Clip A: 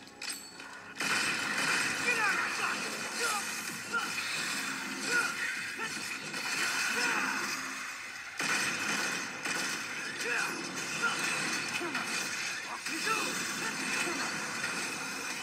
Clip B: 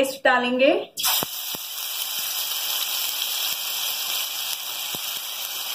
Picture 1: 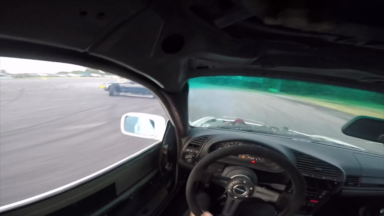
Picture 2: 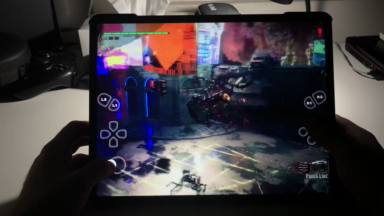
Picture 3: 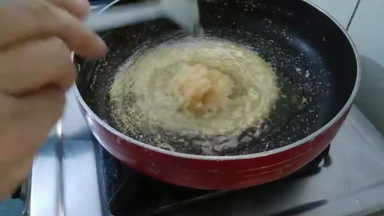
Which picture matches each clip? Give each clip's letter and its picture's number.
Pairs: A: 2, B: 3